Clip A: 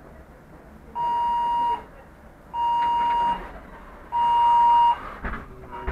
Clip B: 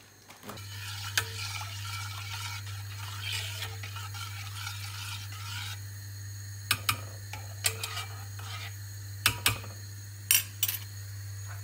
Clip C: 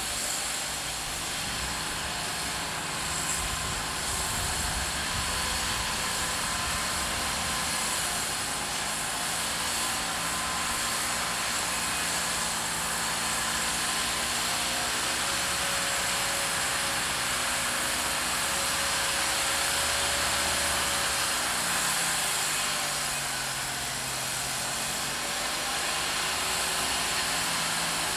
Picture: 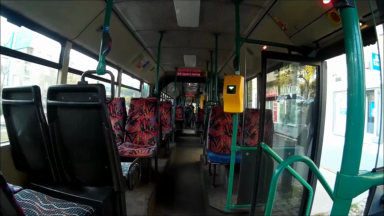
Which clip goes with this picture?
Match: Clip A